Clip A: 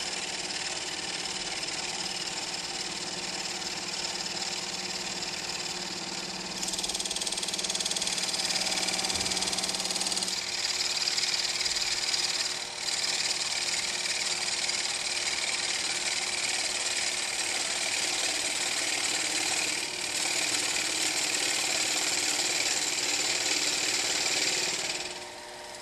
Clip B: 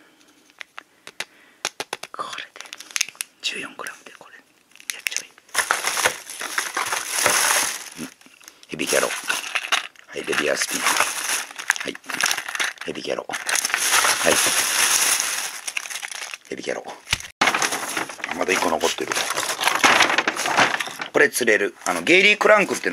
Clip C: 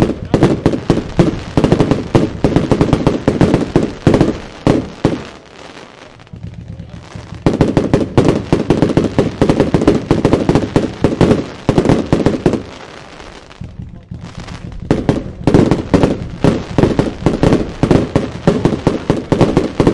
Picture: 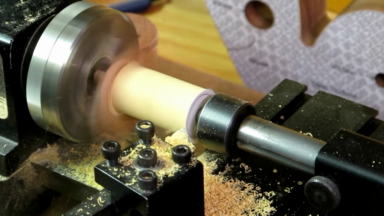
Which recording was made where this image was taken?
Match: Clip A